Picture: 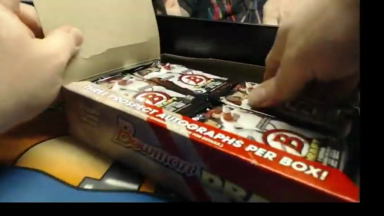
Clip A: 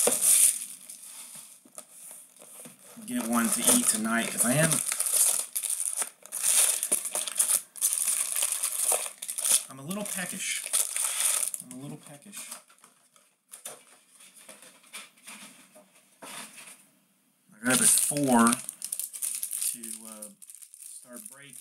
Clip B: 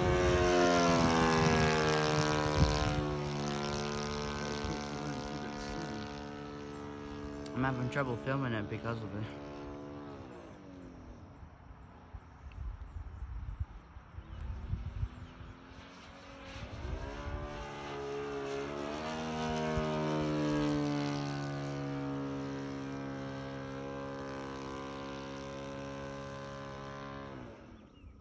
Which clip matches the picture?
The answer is A